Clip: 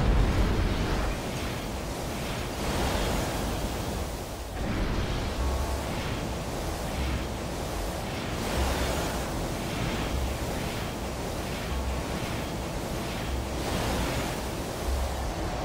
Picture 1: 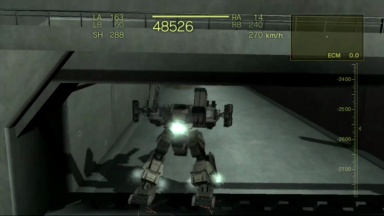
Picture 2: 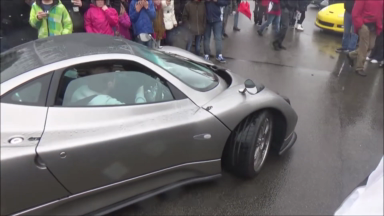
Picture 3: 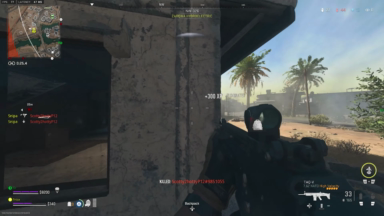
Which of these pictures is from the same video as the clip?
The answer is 1